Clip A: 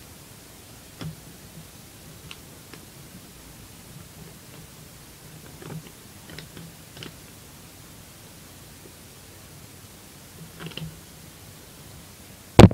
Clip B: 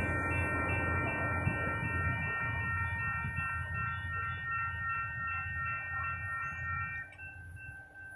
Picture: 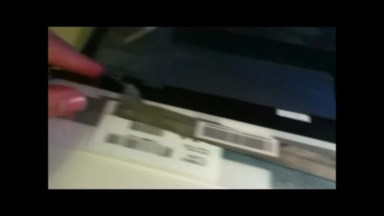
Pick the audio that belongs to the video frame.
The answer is A